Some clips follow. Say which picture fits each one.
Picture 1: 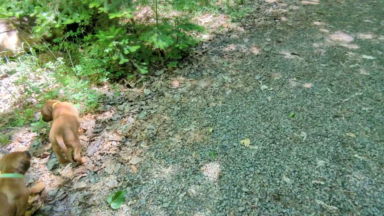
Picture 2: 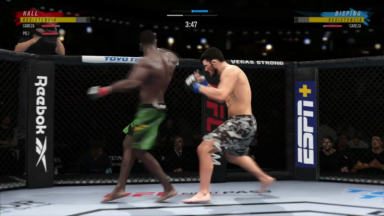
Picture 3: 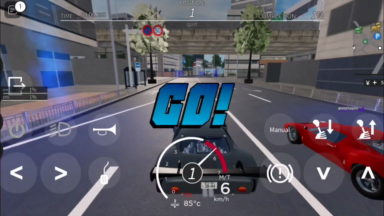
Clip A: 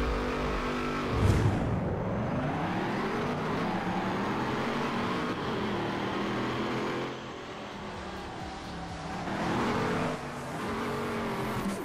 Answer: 3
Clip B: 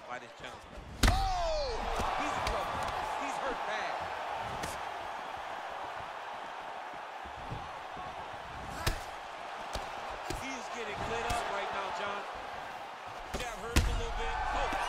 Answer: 2